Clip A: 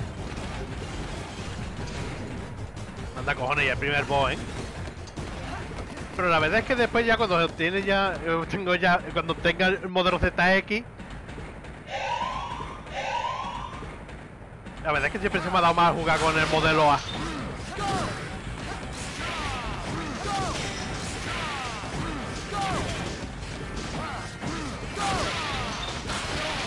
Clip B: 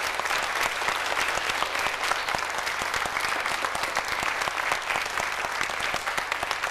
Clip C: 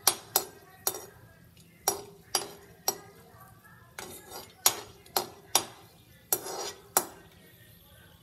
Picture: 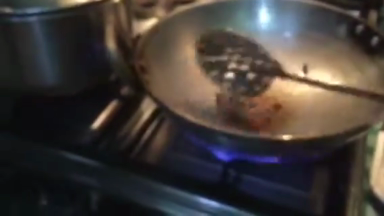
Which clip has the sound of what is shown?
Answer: C